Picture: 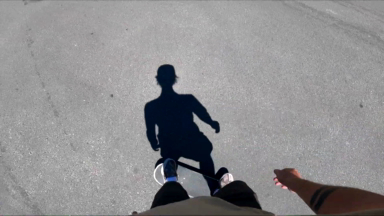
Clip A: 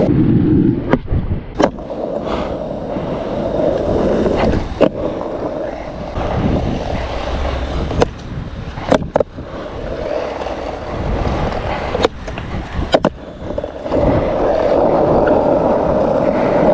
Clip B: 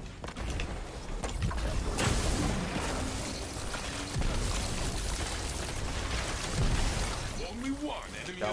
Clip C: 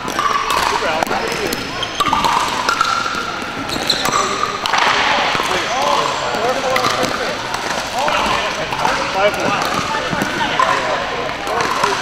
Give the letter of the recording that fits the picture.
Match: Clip A